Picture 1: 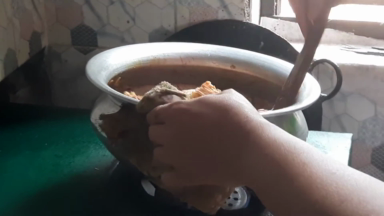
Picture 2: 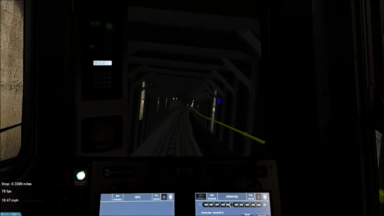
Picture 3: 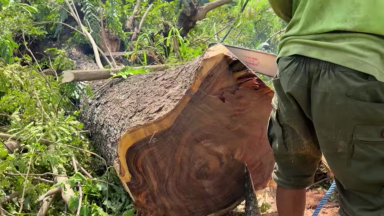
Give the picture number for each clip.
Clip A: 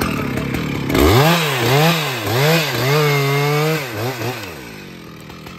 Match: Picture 3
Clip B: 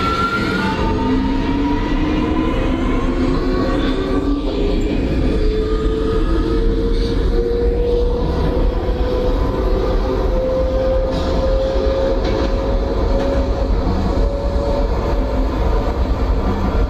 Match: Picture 2